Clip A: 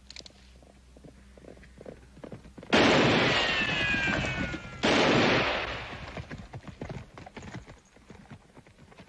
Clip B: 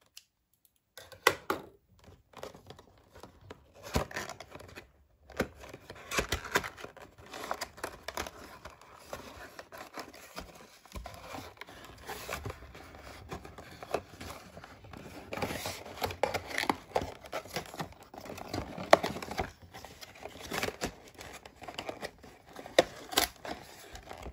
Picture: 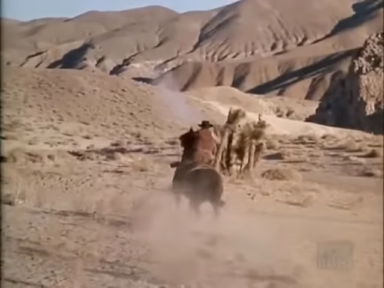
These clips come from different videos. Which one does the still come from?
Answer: A